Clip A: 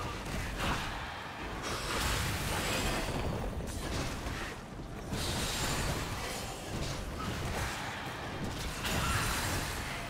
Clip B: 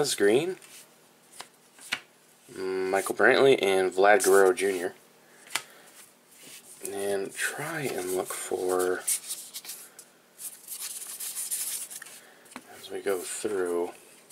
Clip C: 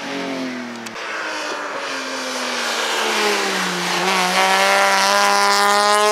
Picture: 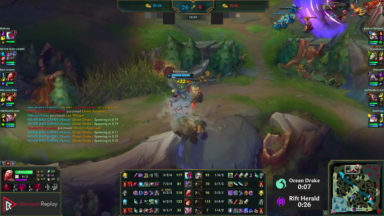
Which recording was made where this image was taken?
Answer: A